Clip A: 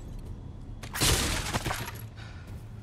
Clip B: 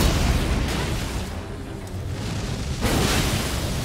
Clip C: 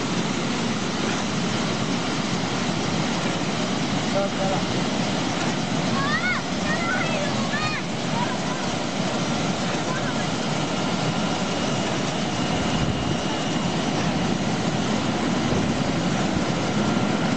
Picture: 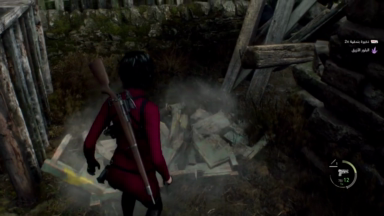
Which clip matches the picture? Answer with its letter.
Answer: A